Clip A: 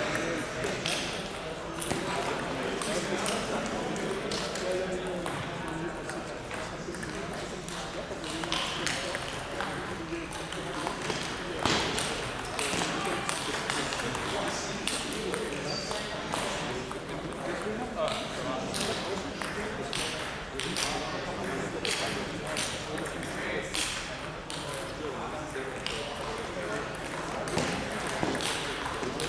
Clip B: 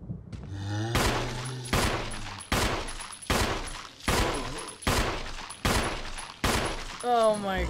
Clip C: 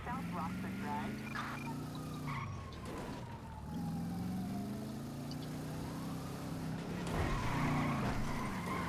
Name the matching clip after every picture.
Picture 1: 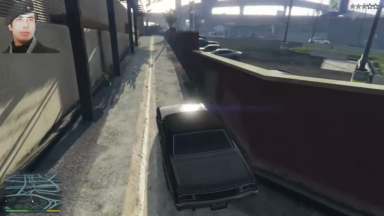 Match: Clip C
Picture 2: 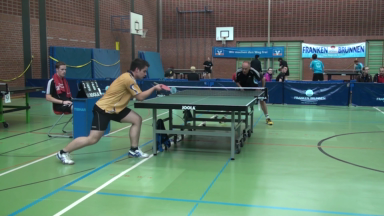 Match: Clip A